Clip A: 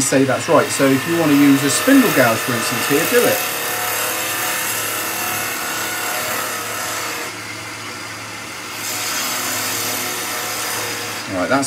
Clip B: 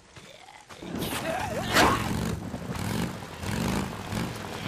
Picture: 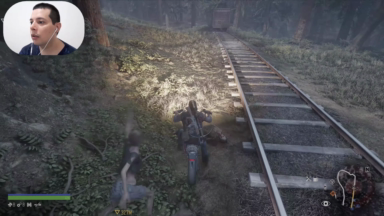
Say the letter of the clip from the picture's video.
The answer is B